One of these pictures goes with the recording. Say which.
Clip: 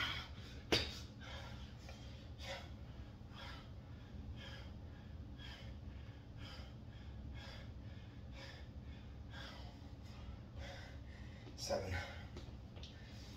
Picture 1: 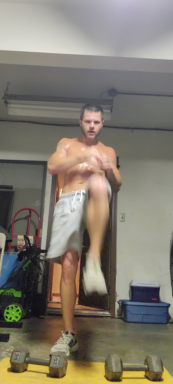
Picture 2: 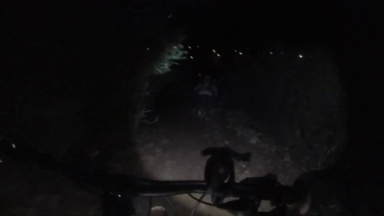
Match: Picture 1